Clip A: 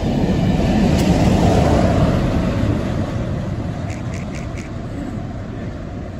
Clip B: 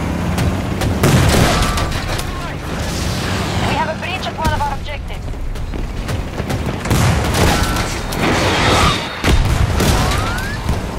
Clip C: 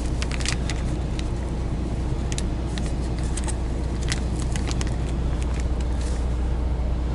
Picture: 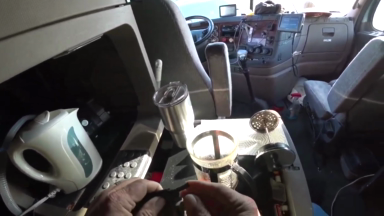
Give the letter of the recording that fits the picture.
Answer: C